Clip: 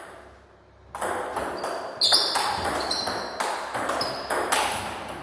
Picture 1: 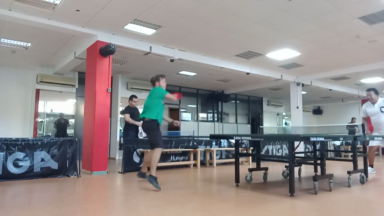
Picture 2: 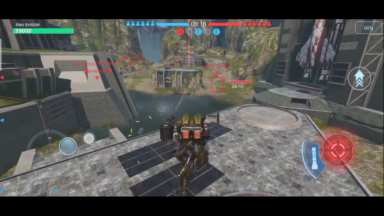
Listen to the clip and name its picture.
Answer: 1